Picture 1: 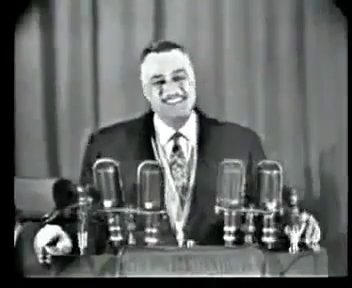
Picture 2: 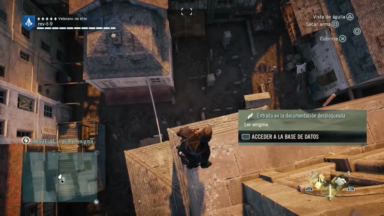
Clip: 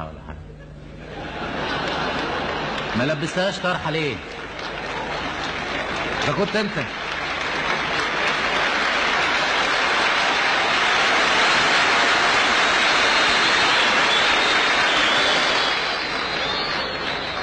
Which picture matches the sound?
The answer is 1